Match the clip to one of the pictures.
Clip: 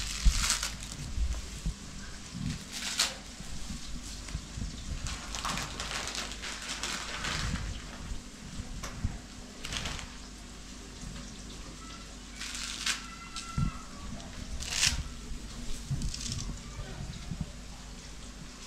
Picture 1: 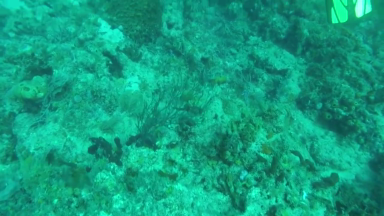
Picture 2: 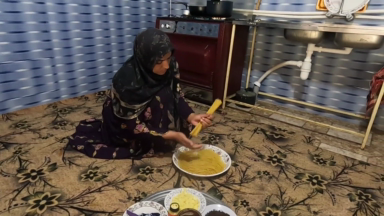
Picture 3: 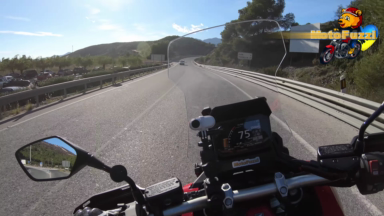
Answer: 2